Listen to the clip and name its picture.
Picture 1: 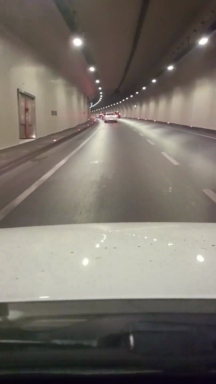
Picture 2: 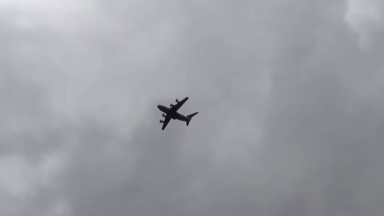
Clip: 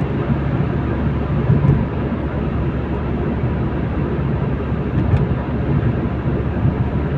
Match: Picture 1